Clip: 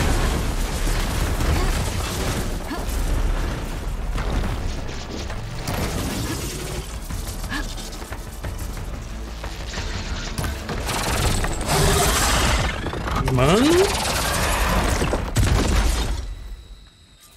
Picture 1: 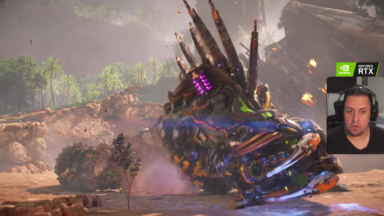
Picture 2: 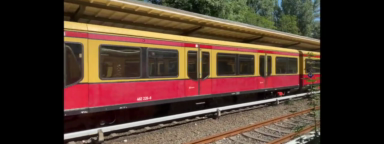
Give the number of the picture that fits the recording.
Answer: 1